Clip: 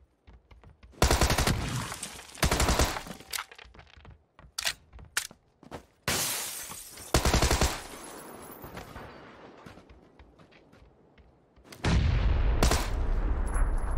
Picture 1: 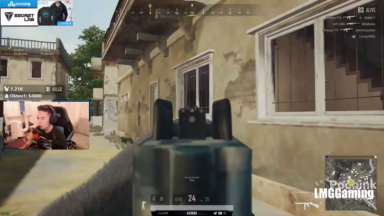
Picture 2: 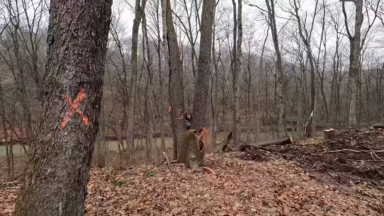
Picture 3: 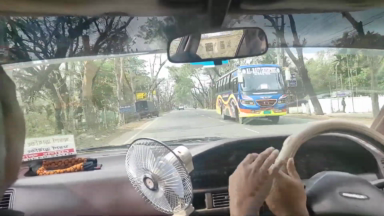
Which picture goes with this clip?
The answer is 1